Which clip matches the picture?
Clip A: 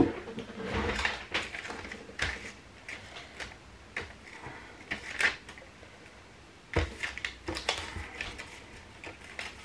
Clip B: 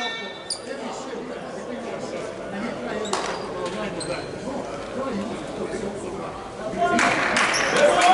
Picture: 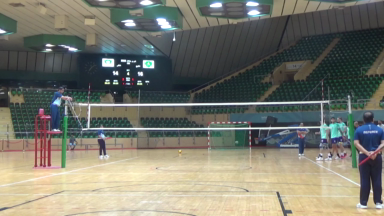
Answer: B